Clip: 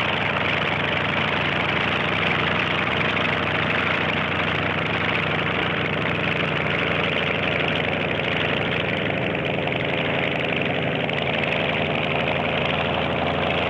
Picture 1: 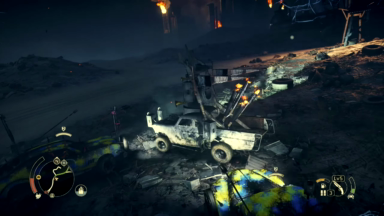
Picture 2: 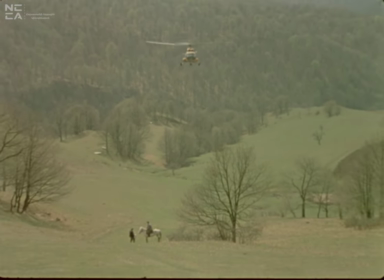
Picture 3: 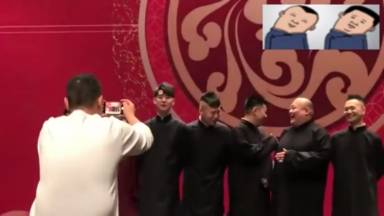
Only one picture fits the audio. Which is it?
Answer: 2